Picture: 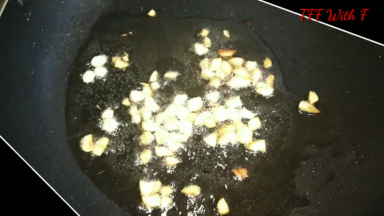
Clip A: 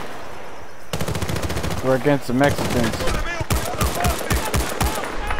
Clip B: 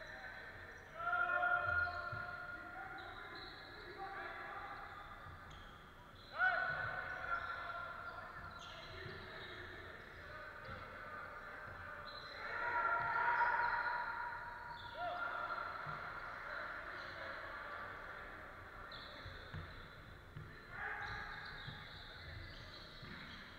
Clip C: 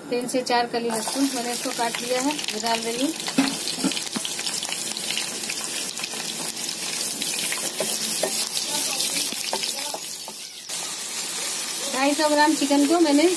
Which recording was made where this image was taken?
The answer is C